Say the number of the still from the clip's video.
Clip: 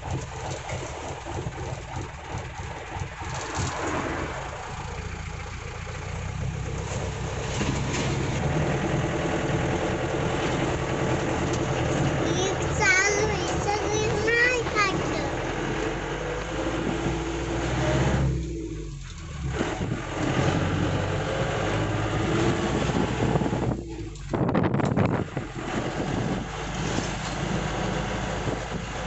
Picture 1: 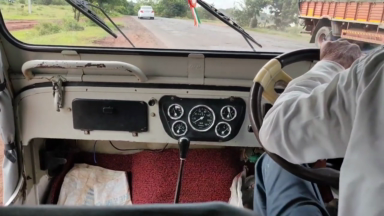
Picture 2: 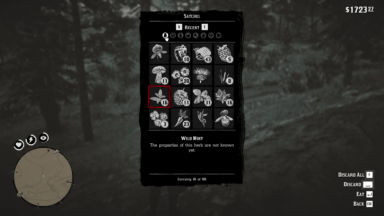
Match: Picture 1